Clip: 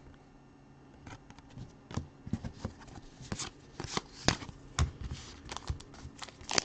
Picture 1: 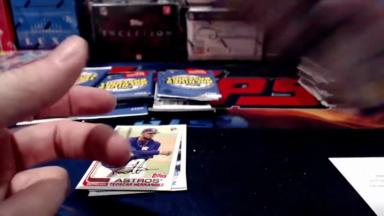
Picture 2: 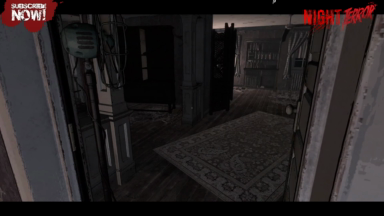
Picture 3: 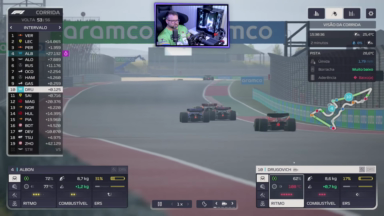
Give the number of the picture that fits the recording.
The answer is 1